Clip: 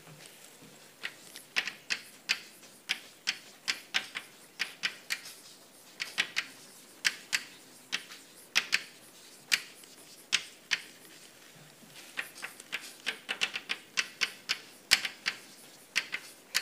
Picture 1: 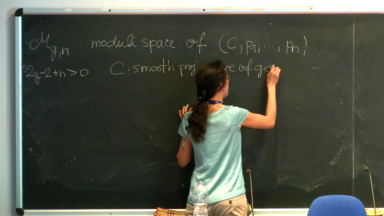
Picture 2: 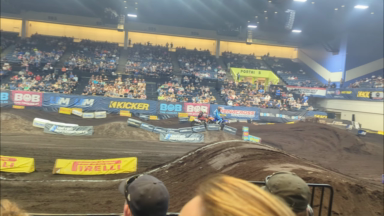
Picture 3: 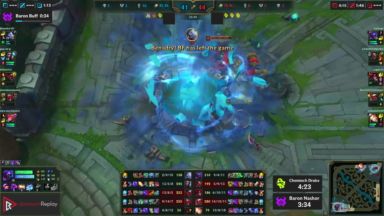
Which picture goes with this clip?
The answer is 1